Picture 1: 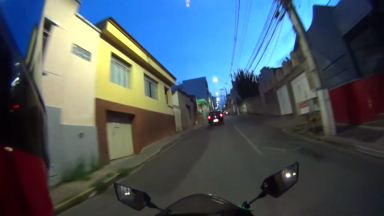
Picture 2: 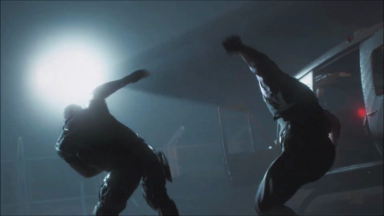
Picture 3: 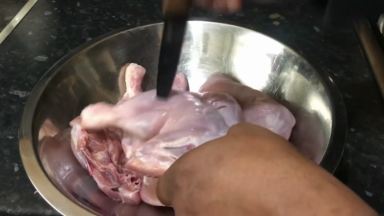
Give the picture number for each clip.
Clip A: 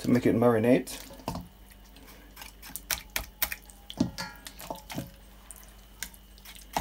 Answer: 3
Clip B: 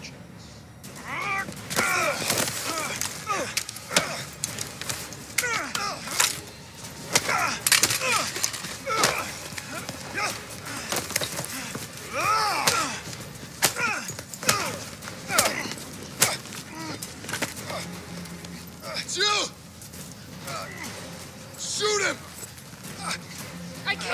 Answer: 2